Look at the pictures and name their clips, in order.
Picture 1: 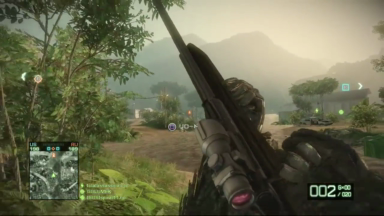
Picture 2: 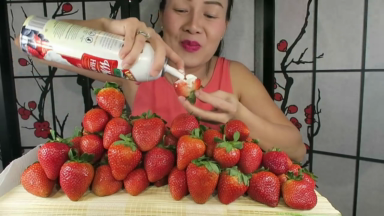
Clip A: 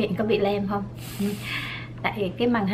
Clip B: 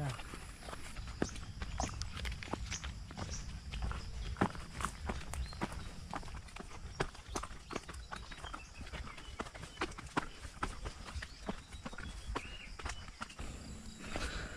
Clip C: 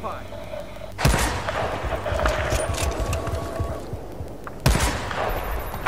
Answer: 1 C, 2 A